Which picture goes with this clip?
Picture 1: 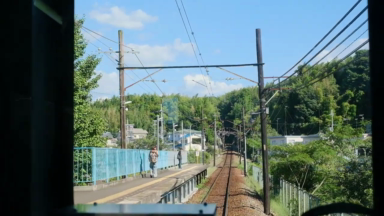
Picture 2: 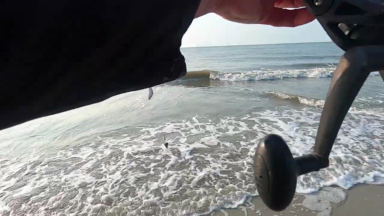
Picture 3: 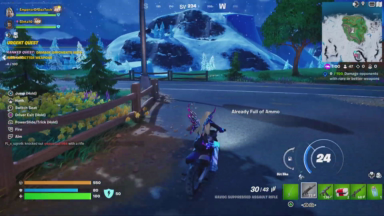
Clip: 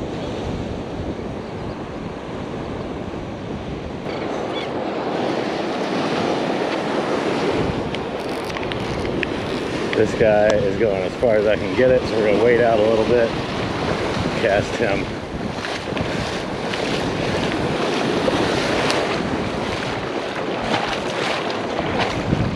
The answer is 2